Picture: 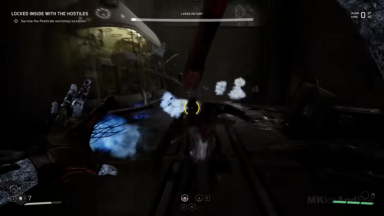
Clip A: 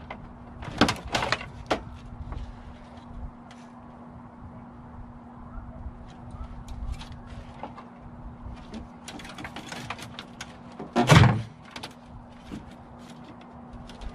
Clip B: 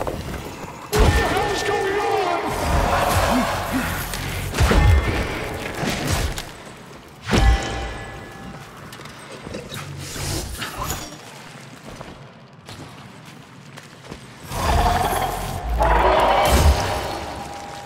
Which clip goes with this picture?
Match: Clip B